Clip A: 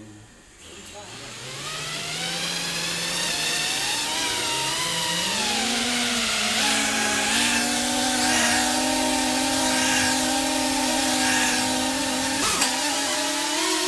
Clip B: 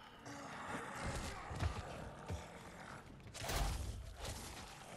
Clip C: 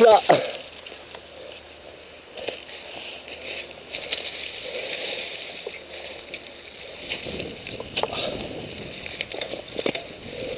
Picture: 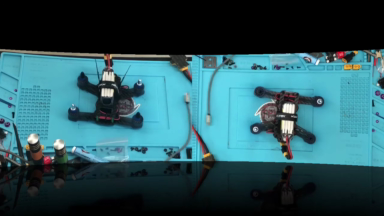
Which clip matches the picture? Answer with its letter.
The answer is A